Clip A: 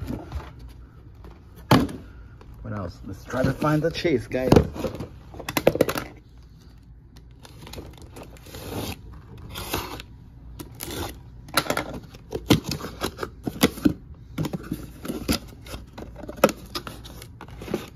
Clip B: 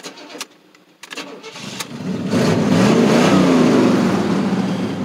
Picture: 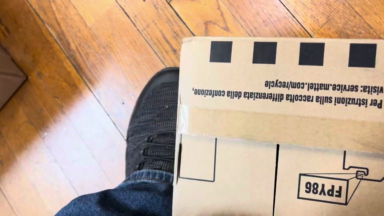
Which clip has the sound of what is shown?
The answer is A